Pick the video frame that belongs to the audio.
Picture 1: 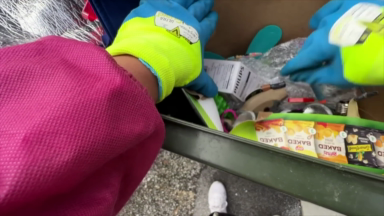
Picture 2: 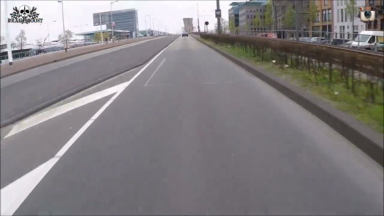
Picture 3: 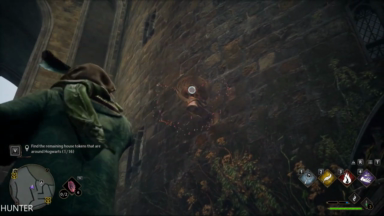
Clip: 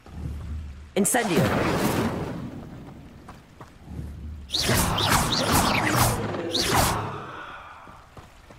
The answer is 3